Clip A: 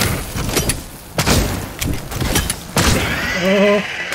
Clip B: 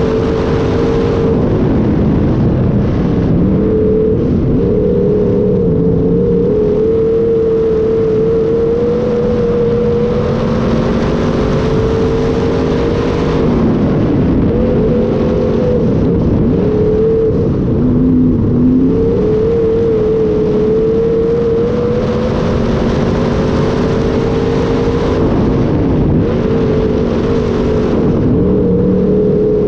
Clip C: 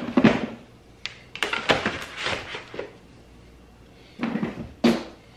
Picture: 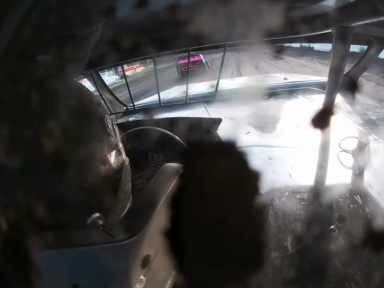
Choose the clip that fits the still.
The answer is B